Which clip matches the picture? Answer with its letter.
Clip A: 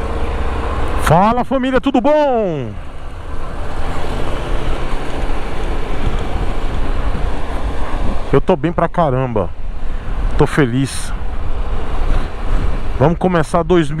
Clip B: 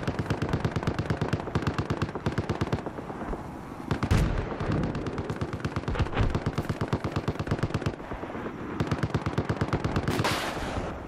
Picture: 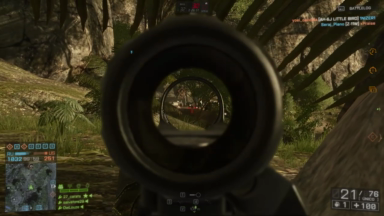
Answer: B